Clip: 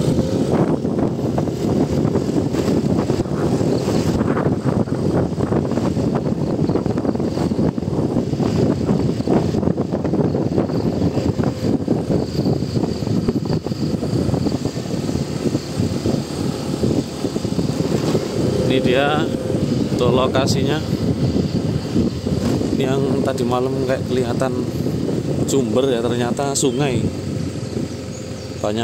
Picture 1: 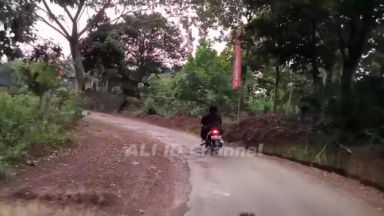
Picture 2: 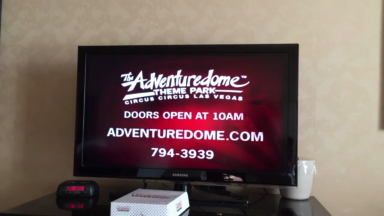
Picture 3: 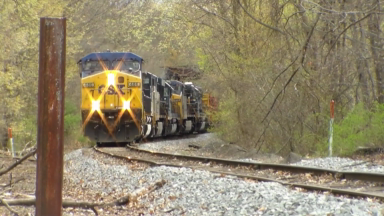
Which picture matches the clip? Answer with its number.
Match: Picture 1